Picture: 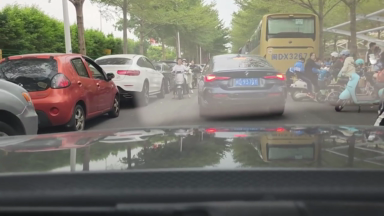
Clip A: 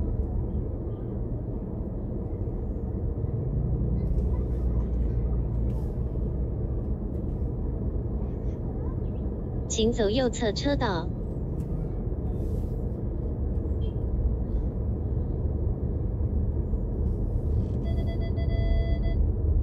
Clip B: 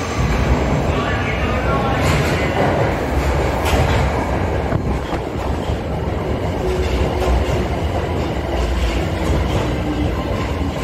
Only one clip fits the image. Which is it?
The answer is A